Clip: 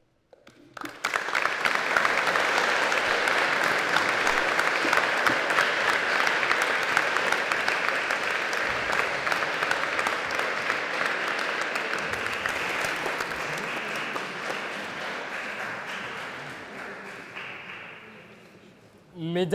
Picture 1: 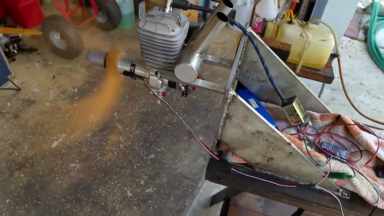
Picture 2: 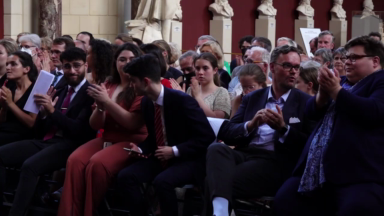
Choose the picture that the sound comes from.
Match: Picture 2